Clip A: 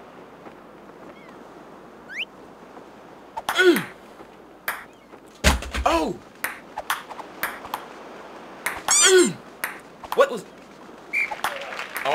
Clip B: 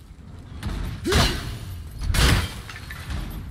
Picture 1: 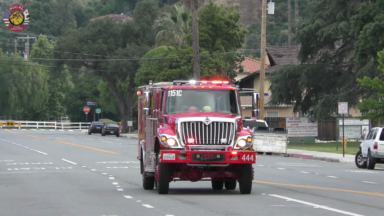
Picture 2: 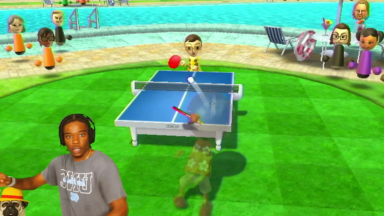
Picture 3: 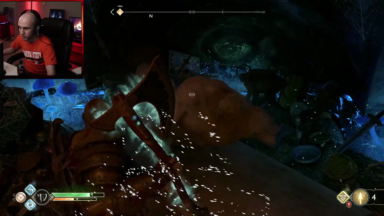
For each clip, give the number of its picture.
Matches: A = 2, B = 3